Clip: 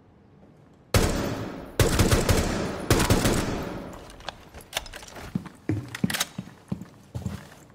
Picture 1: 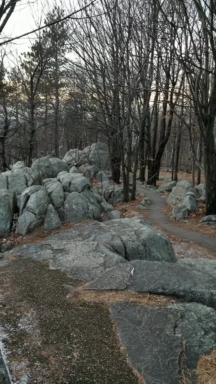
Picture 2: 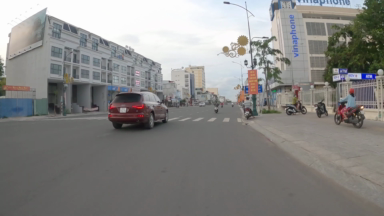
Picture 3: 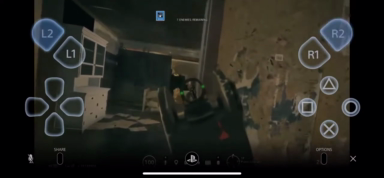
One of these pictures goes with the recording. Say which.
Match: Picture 3